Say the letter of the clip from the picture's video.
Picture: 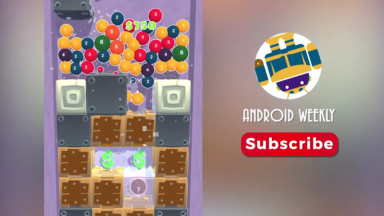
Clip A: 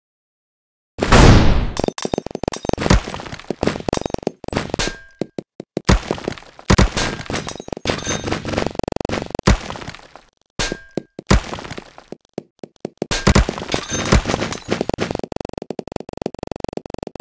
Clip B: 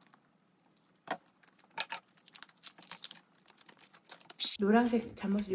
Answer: A